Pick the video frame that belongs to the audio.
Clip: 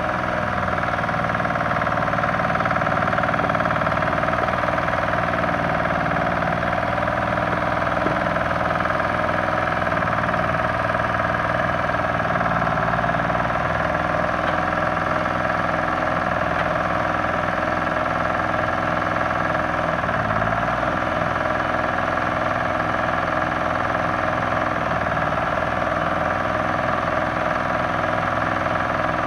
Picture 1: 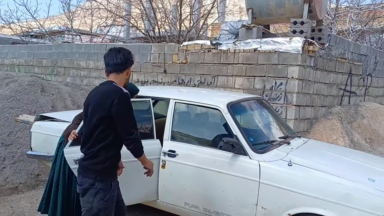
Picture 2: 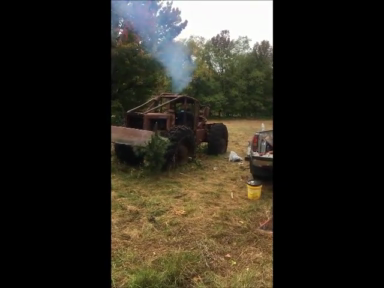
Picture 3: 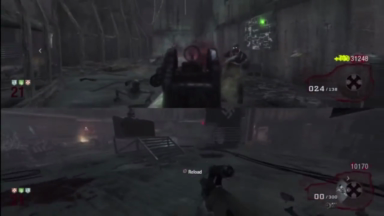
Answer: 2